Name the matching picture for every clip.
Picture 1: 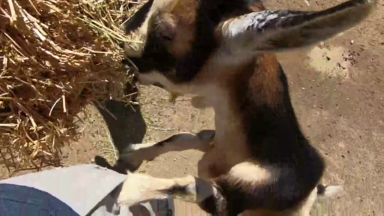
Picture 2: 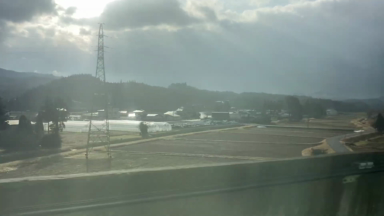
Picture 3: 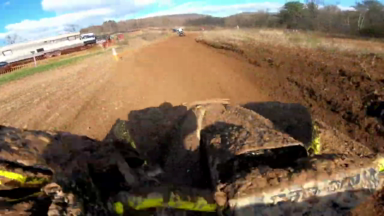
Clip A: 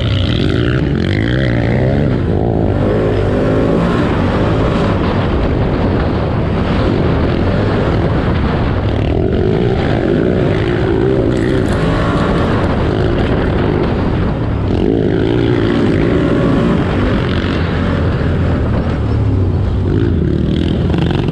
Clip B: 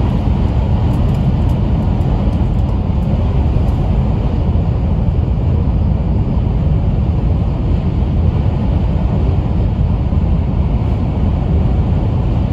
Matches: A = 3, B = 2